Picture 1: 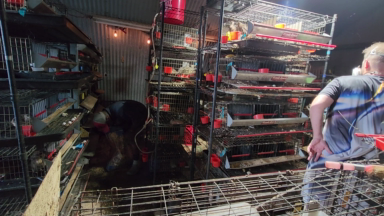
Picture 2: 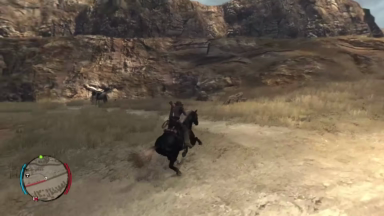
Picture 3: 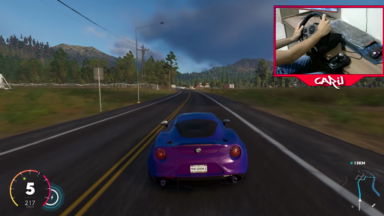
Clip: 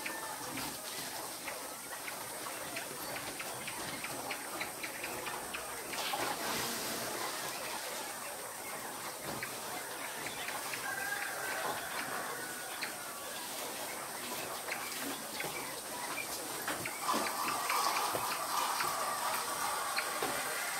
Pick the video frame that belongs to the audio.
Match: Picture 1